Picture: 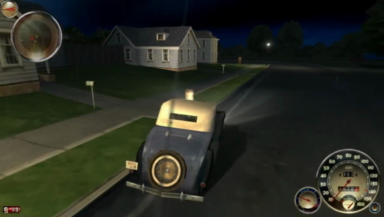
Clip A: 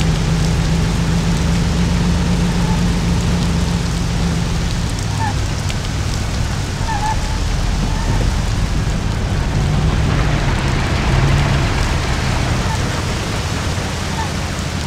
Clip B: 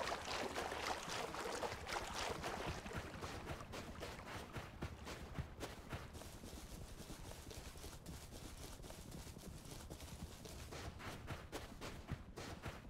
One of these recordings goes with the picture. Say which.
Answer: A